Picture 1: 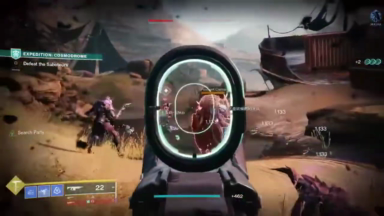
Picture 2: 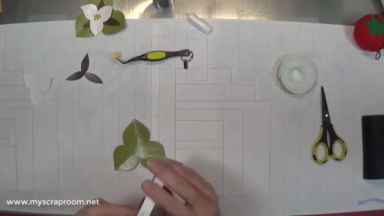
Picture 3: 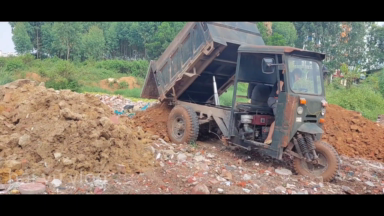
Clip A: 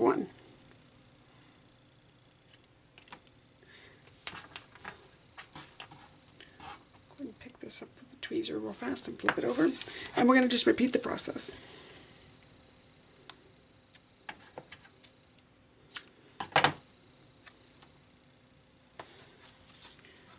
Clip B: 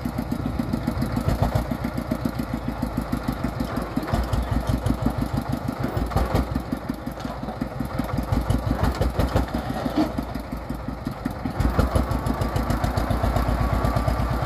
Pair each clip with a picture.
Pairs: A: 2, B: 3